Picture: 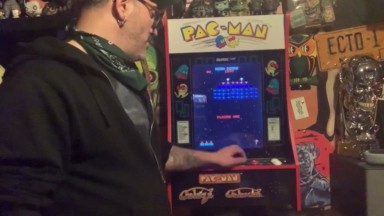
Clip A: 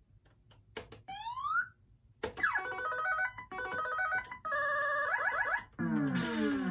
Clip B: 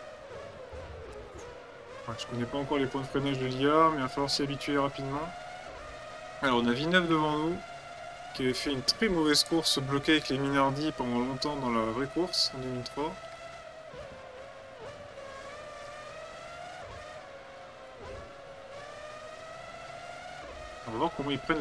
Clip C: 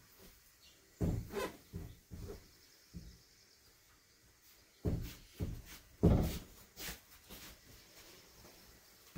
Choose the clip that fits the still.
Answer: A